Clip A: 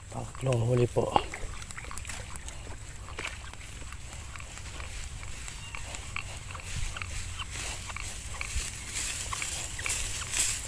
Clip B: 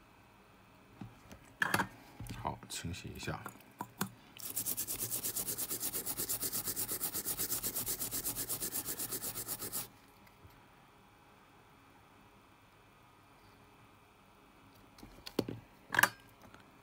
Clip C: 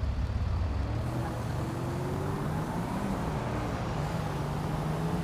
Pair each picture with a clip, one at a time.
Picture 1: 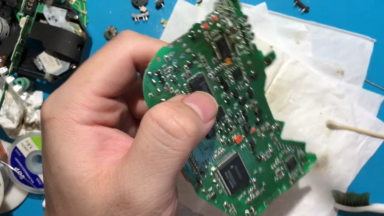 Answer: B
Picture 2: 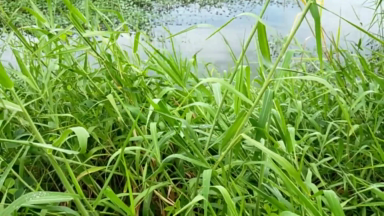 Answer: A